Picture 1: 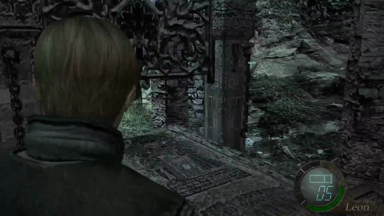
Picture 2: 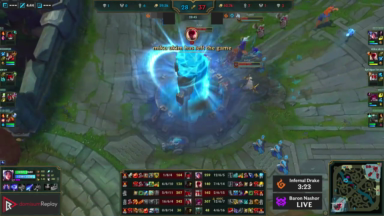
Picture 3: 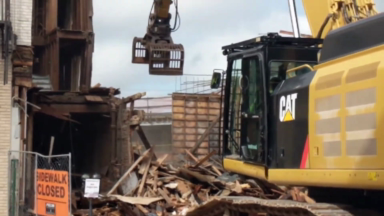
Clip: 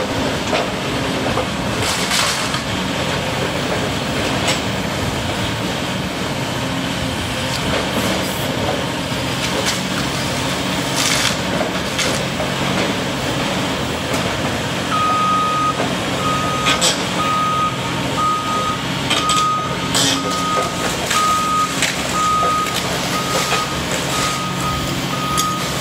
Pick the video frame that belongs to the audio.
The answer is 3